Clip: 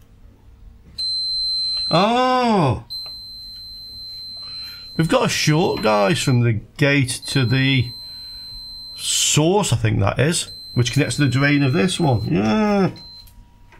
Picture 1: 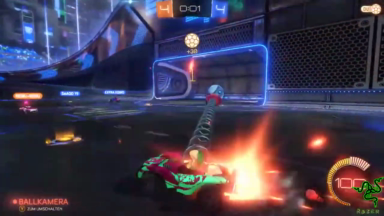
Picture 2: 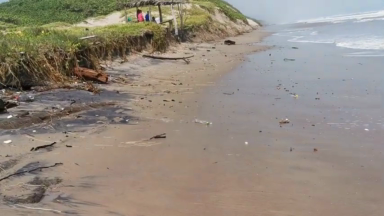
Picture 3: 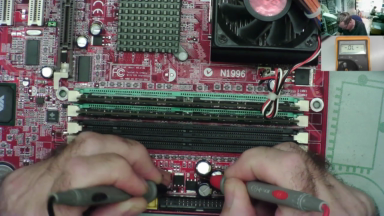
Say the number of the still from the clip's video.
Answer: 3